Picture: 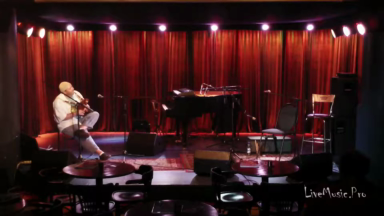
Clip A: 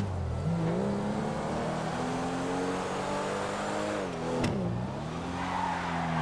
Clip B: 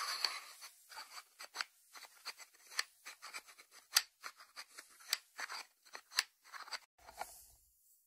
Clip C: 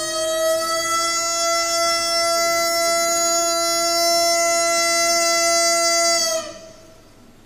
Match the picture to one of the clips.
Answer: C